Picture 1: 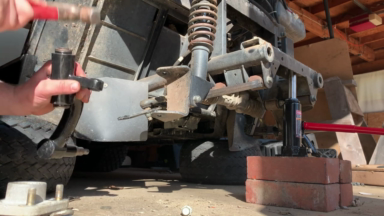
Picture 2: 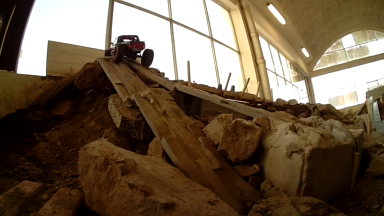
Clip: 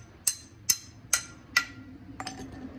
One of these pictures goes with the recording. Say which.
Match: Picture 1